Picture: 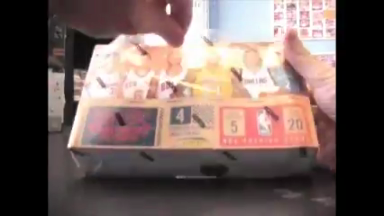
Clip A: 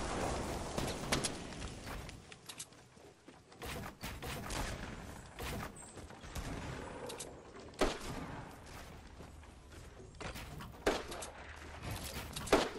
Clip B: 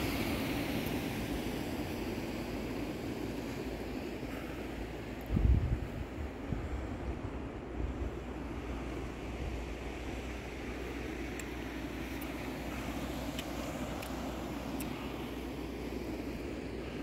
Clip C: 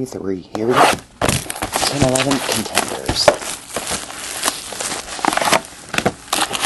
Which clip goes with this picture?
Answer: C